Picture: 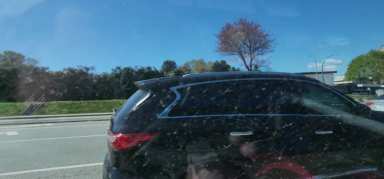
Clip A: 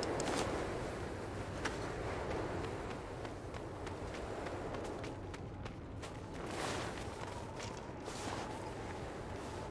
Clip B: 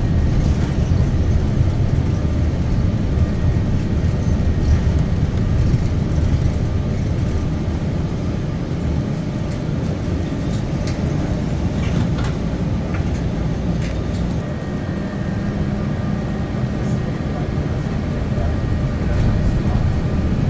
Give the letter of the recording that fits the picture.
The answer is B